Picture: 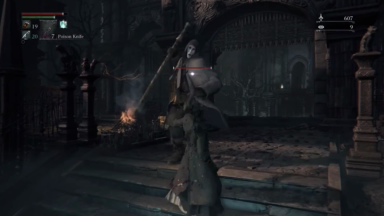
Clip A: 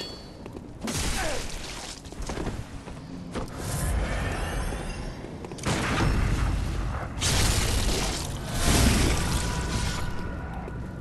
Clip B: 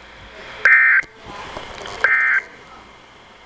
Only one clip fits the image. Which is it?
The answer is A